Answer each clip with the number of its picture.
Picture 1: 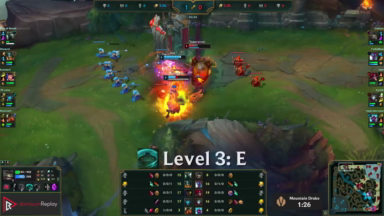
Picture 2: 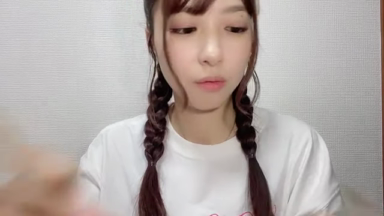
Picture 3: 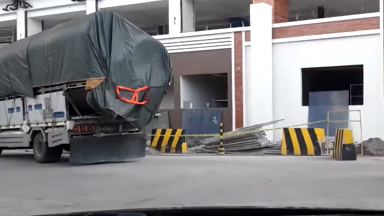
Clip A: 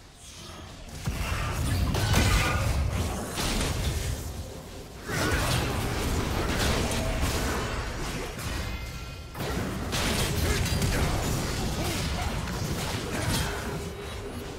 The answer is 1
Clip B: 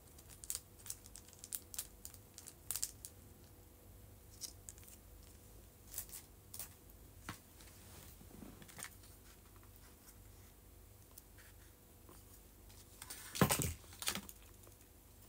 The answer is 2